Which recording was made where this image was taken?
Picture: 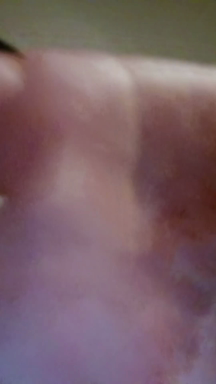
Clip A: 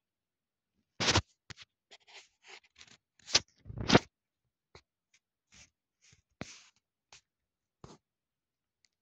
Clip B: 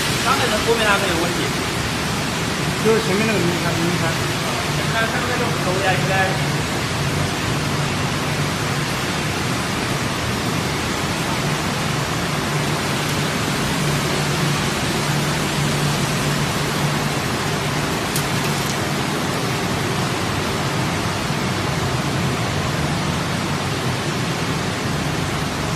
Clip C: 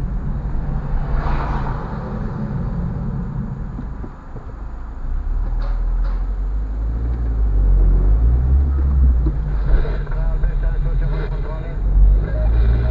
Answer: A